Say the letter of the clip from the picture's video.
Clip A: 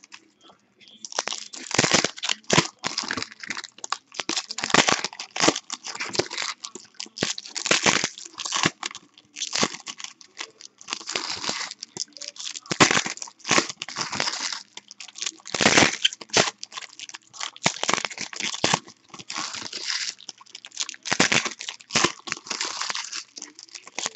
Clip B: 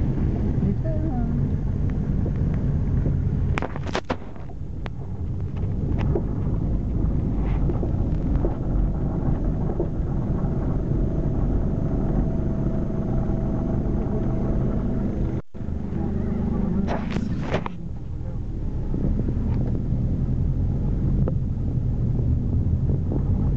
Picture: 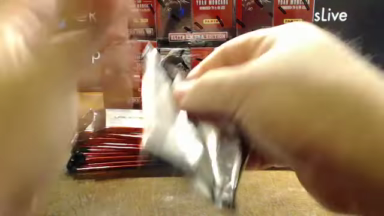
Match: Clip A